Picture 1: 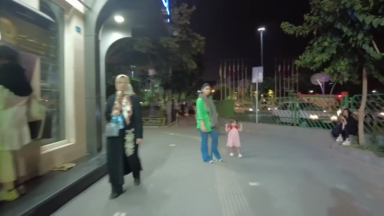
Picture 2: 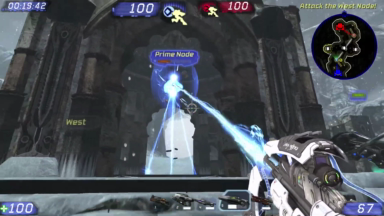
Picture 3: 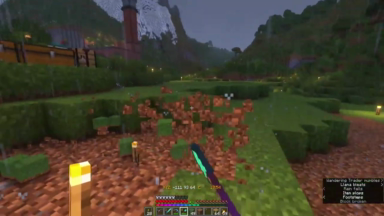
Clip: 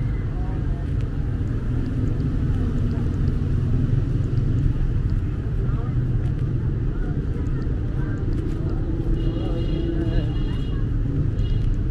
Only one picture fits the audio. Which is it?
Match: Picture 1